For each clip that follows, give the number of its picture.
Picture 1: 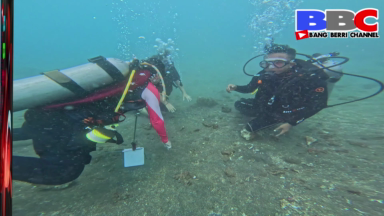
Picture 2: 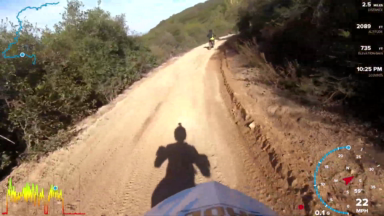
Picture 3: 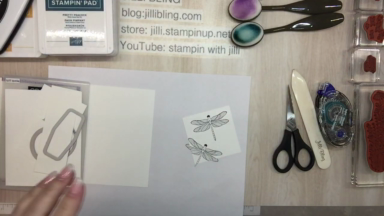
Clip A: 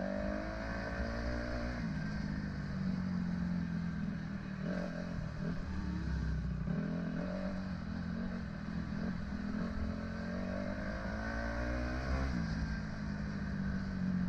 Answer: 2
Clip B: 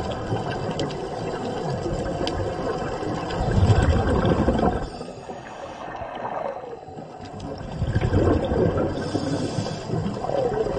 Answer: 1